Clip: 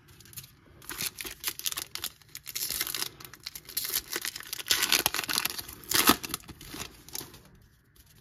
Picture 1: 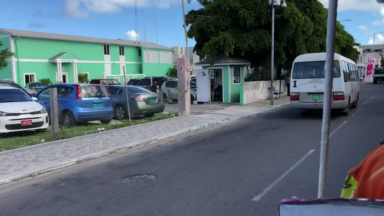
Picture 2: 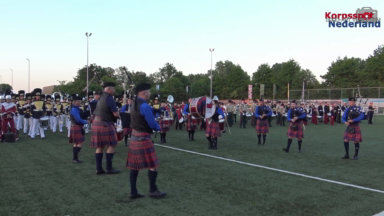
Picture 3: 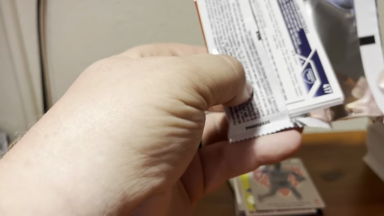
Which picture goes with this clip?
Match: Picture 3